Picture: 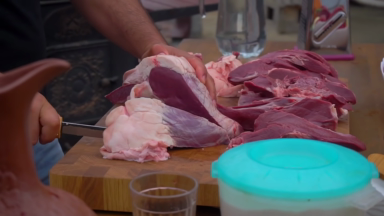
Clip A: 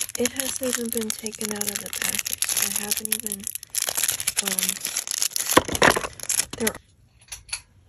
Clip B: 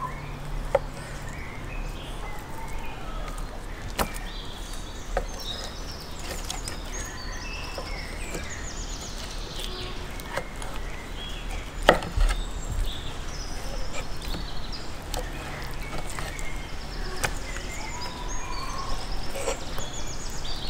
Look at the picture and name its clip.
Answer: B